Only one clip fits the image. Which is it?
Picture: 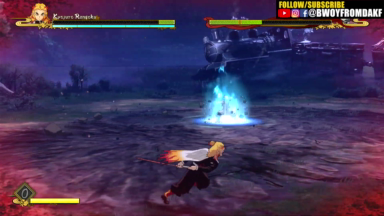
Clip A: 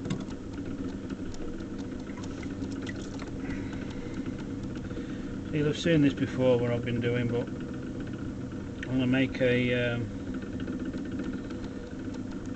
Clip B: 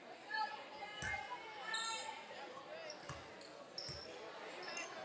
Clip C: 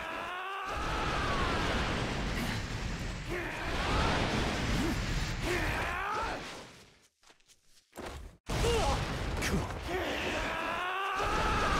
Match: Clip C